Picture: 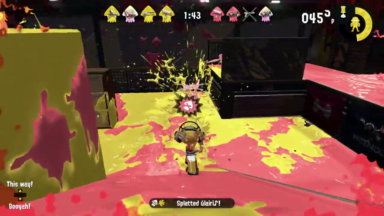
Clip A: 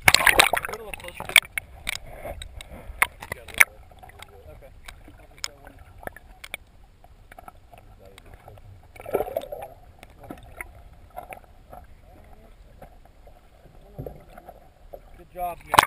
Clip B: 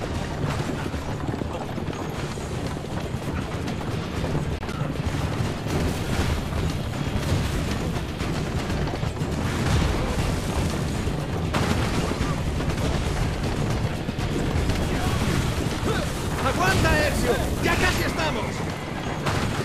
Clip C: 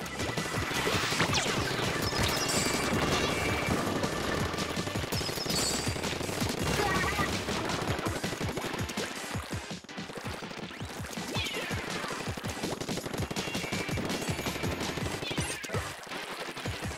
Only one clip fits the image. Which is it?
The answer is C